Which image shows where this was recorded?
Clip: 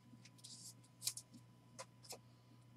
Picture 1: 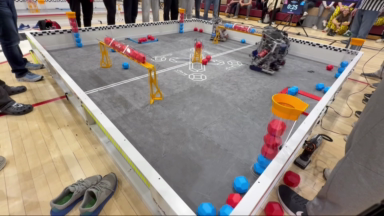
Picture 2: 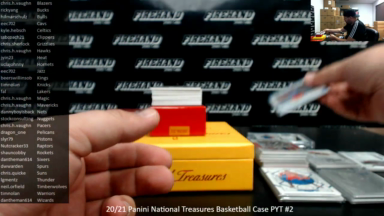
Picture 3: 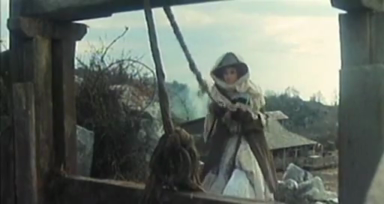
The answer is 2